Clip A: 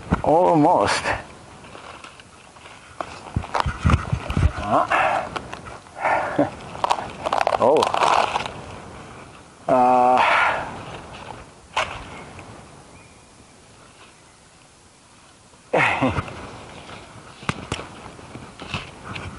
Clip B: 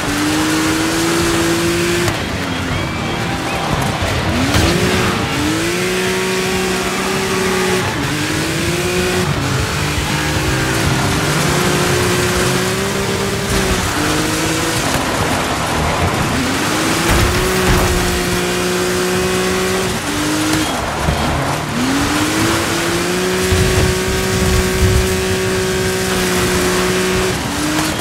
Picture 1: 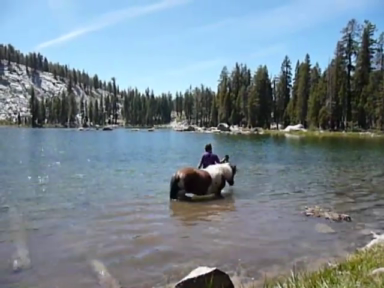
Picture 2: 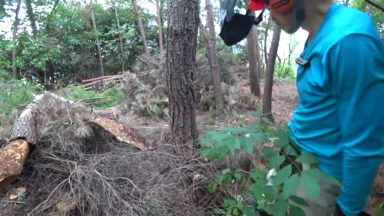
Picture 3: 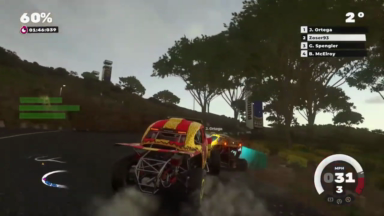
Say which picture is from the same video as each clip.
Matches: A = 2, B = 3